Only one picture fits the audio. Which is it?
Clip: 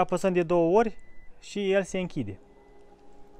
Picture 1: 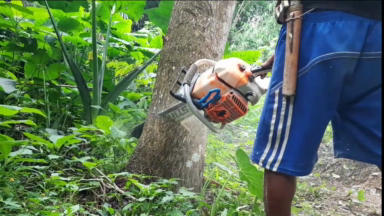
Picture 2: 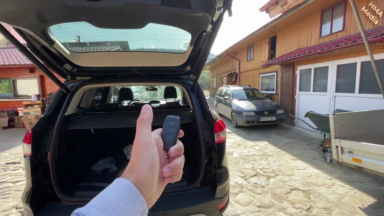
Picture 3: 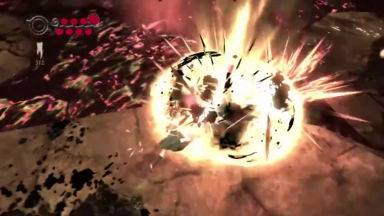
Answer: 2